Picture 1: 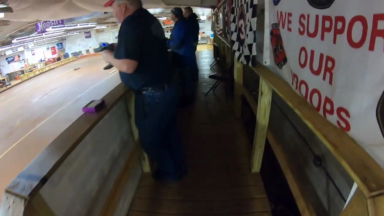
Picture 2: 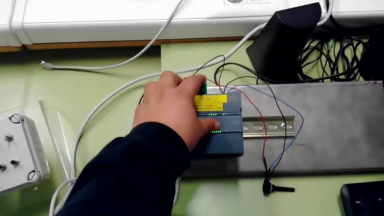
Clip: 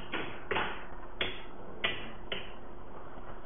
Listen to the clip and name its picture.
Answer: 2